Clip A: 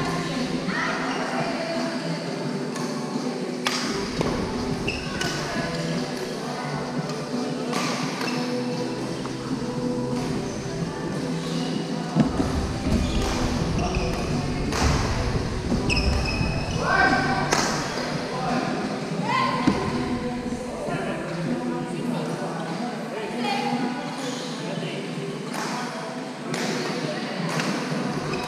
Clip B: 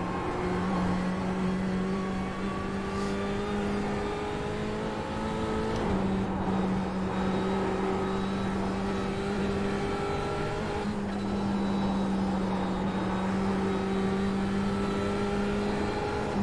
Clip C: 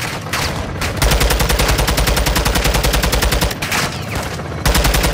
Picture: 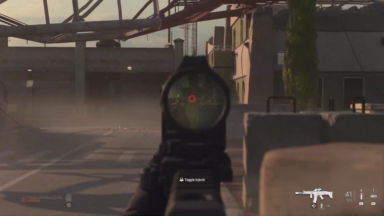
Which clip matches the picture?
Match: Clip C